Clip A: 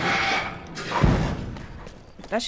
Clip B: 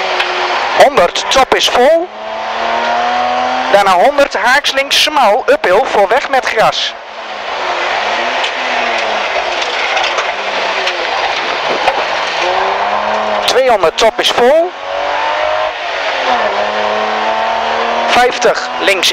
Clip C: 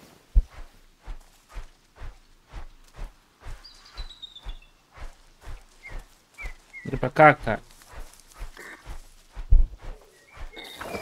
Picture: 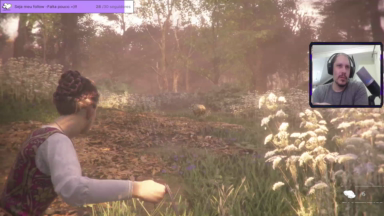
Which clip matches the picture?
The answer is C